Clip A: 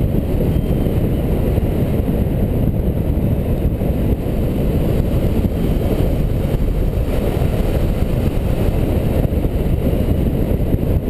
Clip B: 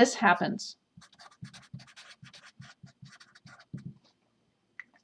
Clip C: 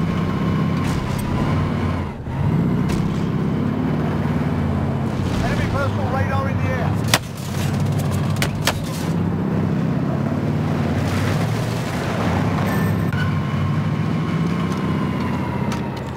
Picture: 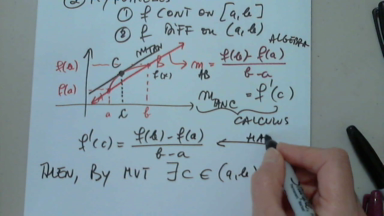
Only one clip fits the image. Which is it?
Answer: B